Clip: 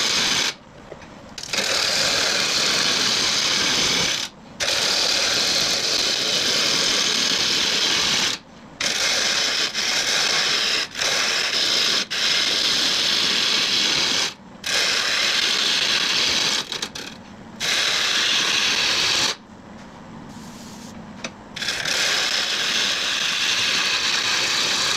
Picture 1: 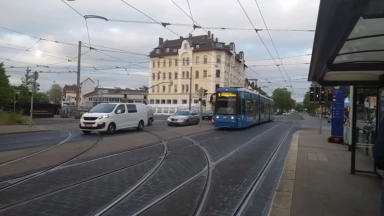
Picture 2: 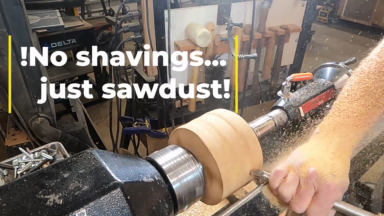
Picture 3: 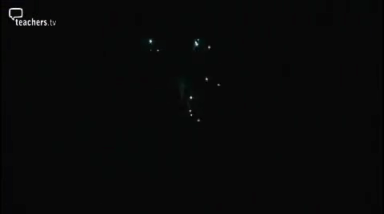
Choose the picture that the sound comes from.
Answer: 2